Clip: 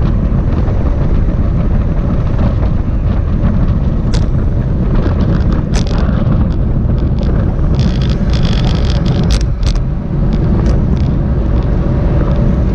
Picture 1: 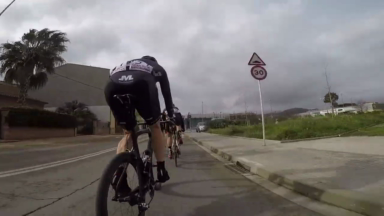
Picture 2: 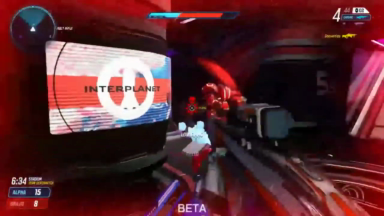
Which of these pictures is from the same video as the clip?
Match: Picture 1